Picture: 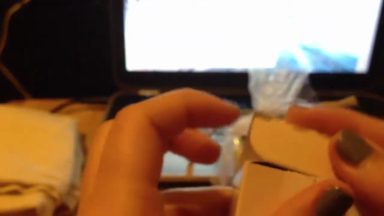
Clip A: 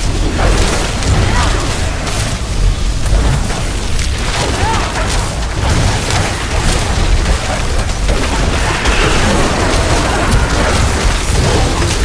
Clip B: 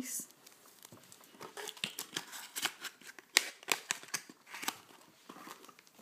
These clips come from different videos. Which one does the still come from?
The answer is B